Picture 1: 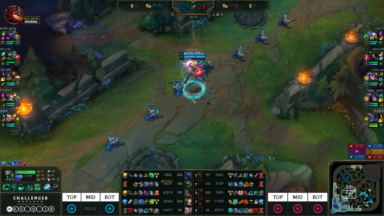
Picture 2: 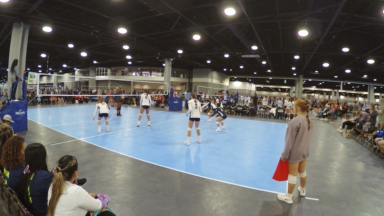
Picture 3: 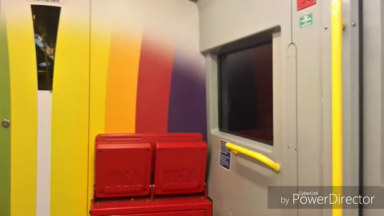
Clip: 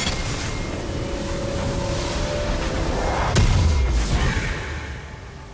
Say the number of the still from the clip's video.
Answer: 1